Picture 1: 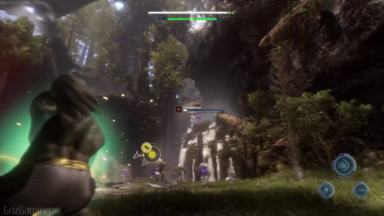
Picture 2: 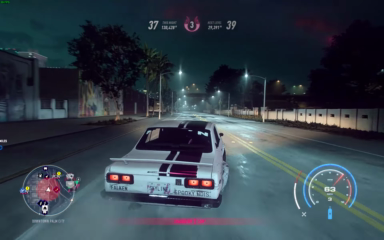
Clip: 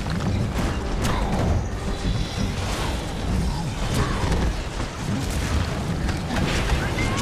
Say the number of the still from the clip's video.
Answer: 1